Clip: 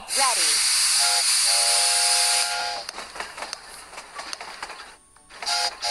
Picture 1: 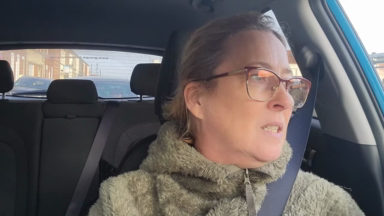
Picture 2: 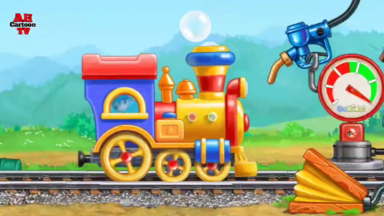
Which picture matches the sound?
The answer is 2